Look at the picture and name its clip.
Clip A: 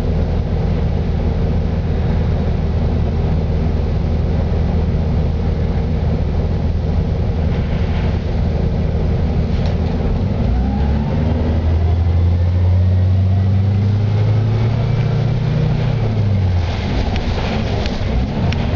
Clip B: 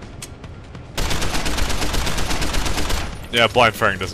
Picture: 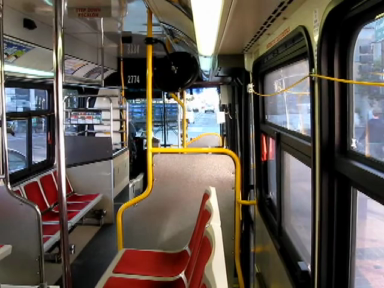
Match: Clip A